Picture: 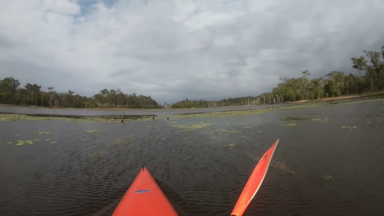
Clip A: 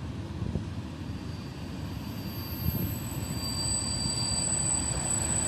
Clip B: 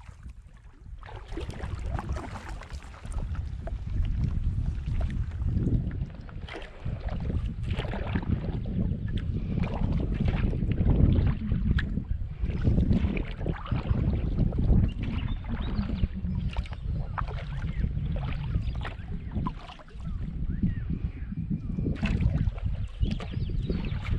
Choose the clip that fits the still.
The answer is B